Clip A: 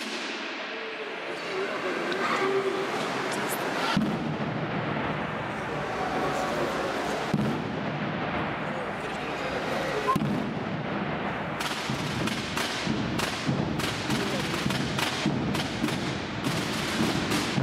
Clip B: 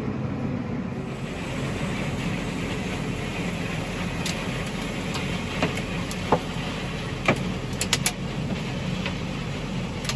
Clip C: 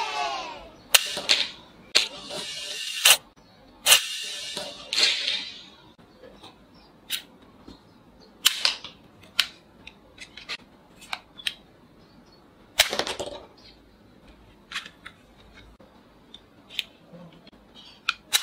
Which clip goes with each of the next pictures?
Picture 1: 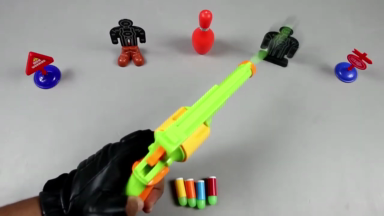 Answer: C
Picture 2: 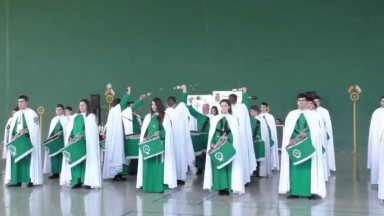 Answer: A